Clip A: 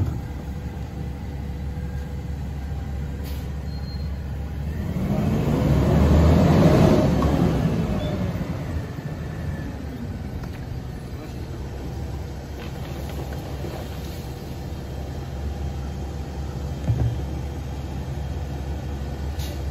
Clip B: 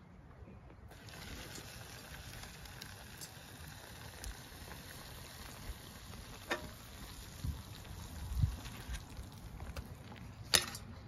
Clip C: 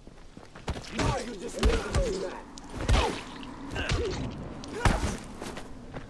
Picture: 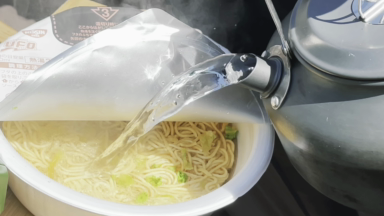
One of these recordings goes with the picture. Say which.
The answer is B